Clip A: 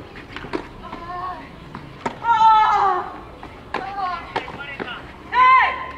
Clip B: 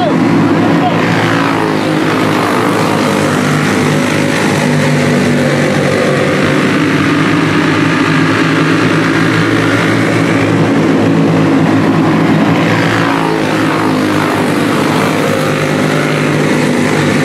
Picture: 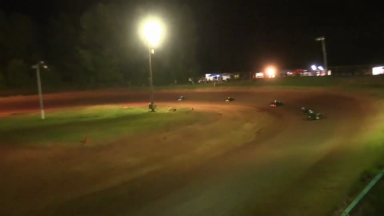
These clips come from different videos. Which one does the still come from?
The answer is B